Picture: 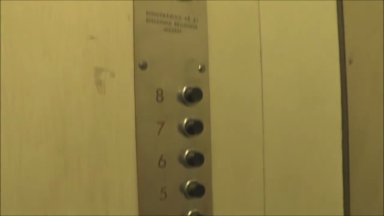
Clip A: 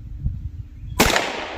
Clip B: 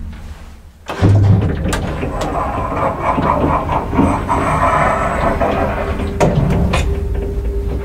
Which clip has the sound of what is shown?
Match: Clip B